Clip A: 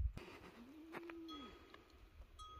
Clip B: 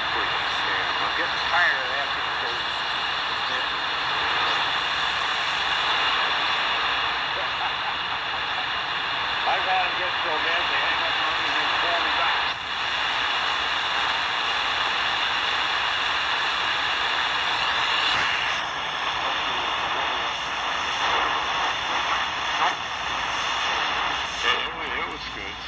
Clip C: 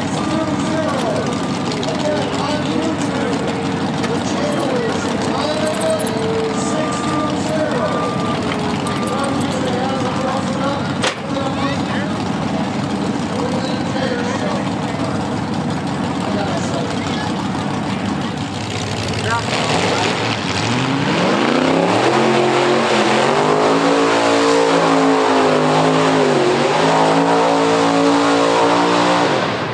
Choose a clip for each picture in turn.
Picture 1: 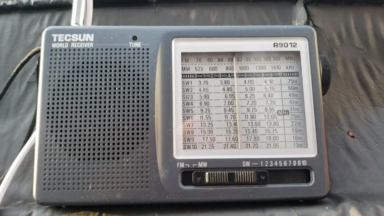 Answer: B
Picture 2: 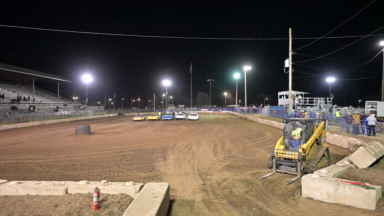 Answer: C